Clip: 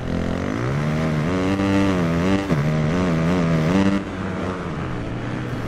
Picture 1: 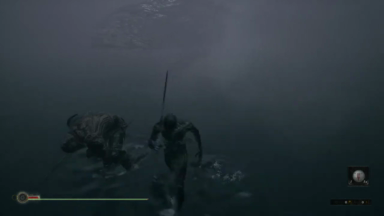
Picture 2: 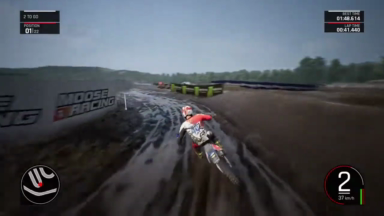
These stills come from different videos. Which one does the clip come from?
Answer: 2